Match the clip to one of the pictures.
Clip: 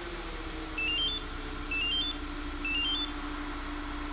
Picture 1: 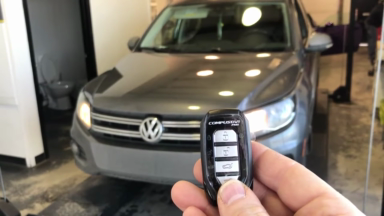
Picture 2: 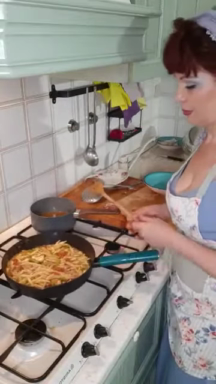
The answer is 1